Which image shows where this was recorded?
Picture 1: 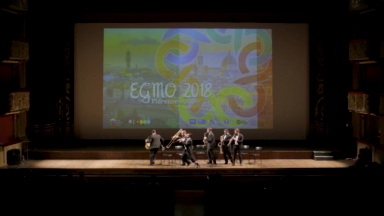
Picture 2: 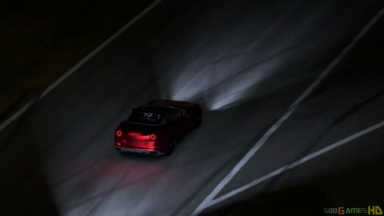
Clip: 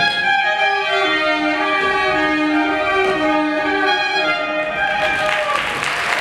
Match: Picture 1